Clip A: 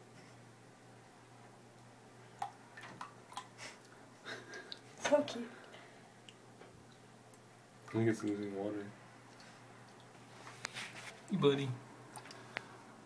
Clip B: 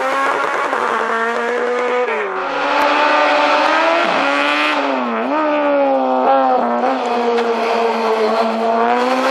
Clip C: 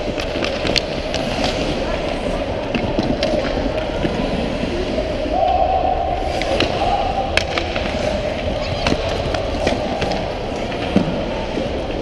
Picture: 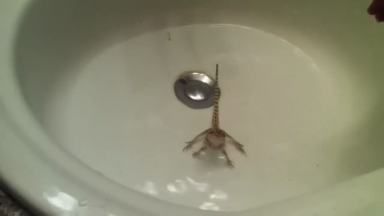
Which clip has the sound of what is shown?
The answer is A